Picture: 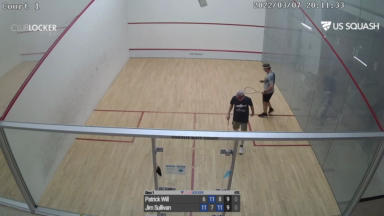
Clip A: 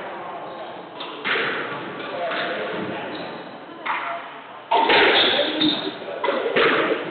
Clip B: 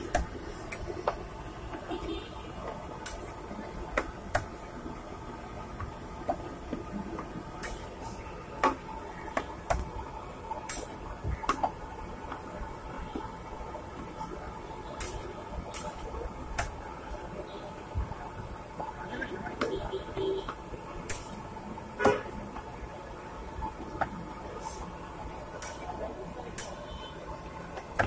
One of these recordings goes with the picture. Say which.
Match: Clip A